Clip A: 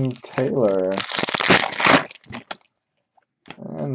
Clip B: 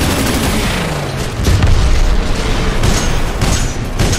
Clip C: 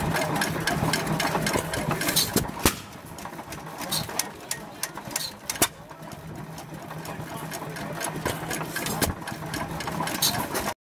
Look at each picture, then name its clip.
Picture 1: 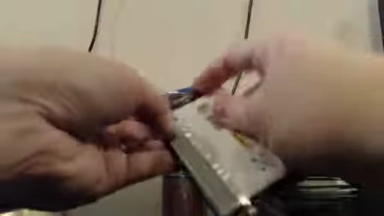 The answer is A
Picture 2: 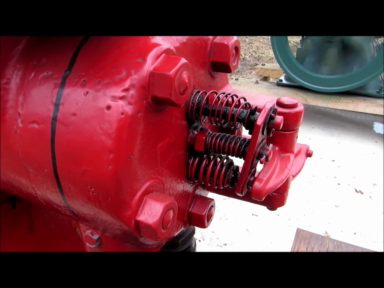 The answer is C